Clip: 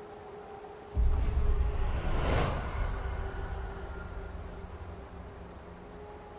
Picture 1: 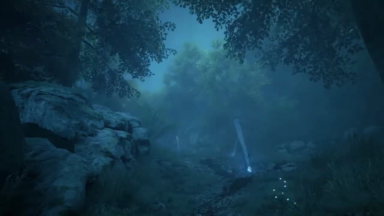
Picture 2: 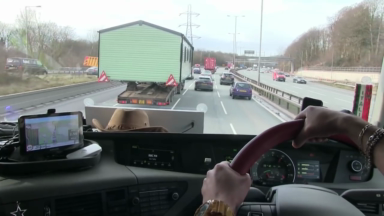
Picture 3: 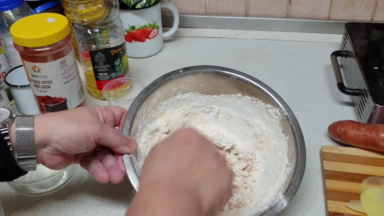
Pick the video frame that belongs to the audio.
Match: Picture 1